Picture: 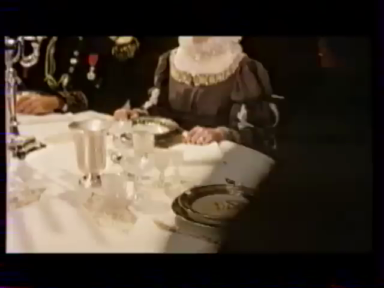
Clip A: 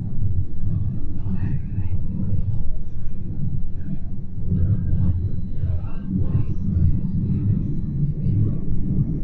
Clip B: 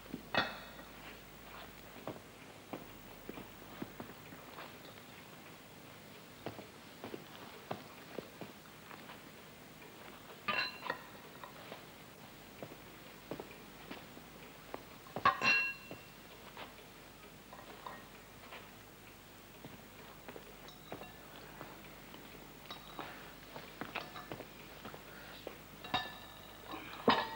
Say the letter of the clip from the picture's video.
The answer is B